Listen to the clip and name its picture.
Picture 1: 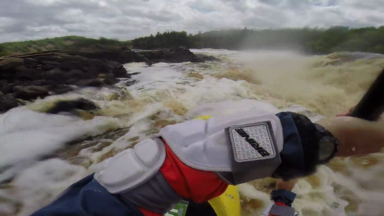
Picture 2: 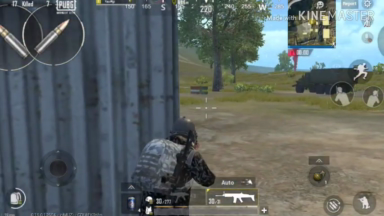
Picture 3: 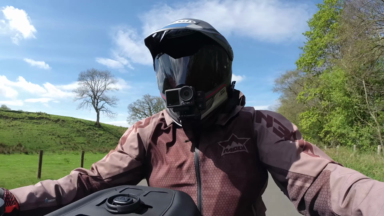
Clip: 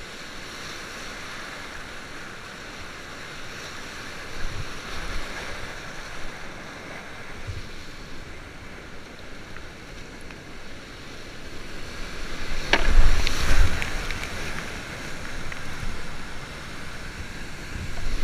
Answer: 1